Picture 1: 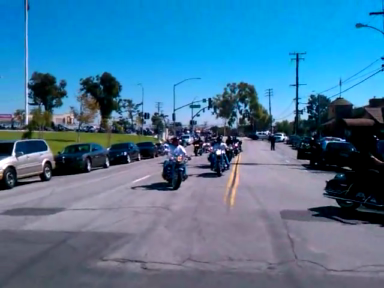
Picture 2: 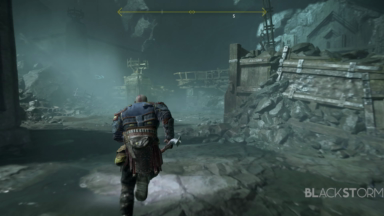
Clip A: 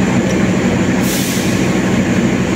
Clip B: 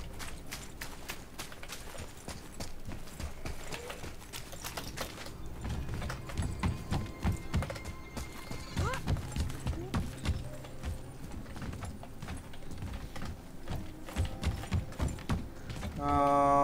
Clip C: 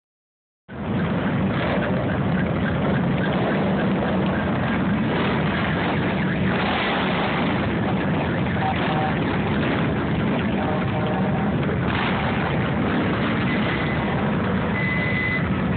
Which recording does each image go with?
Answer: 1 C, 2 B